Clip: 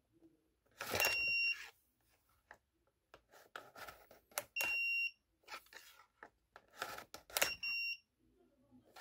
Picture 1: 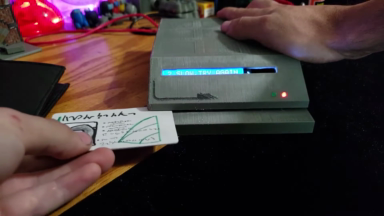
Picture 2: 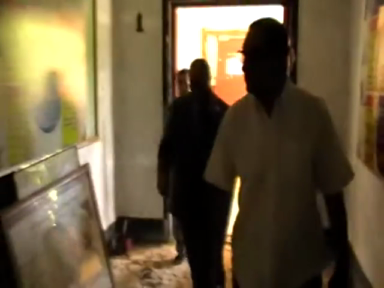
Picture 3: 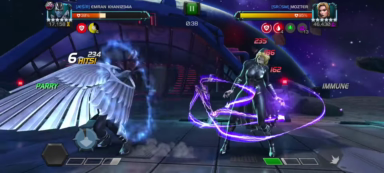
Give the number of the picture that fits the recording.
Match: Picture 1